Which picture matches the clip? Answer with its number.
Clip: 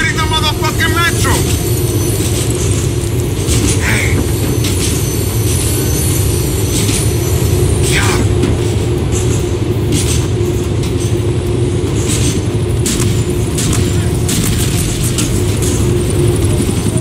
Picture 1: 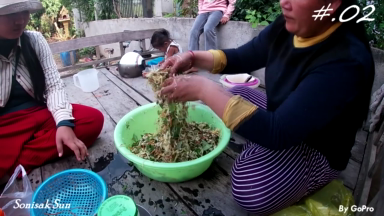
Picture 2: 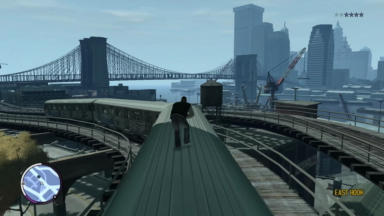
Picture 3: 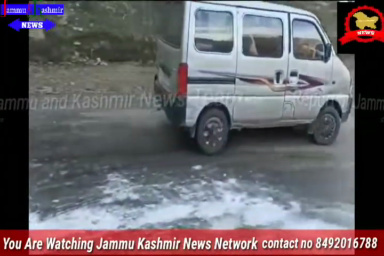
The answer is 2